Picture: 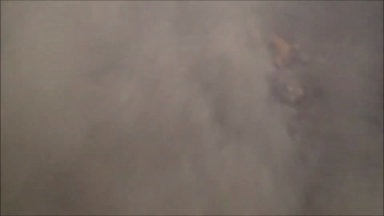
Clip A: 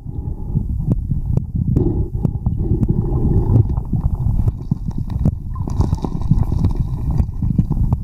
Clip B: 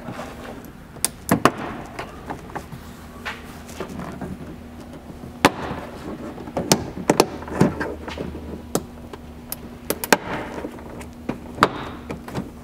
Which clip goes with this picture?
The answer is A